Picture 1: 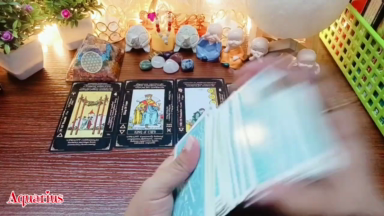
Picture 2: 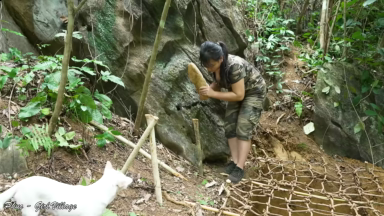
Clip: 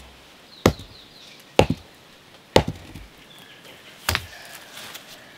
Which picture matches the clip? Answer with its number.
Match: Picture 2